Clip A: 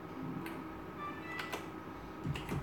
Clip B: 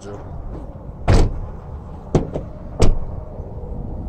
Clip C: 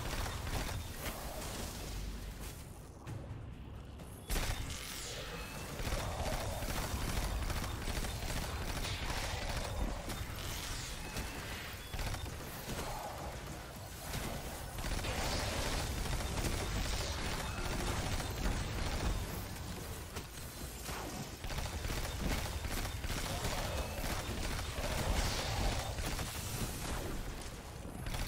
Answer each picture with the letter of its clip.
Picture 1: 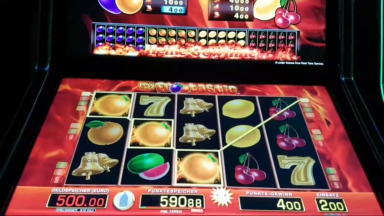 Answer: A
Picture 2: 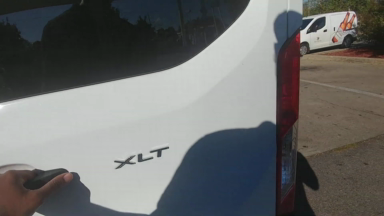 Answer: B